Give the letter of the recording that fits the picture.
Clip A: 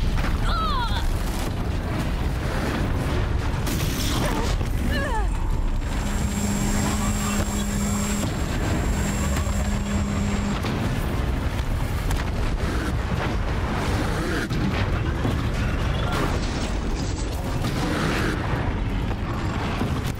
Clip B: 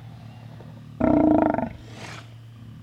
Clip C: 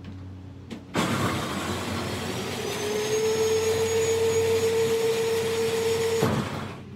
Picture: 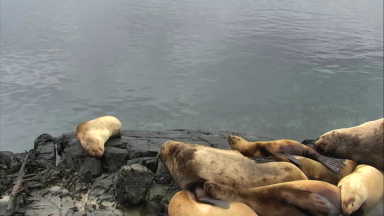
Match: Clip B